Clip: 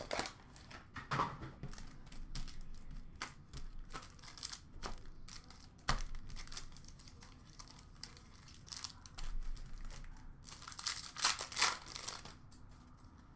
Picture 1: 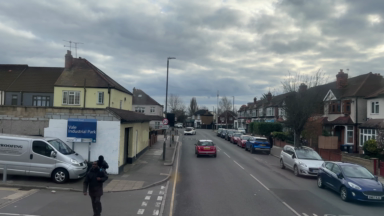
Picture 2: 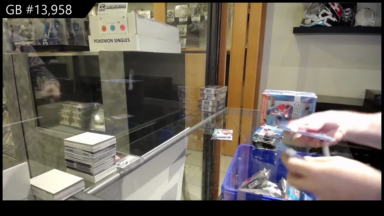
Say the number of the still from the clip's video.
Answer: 2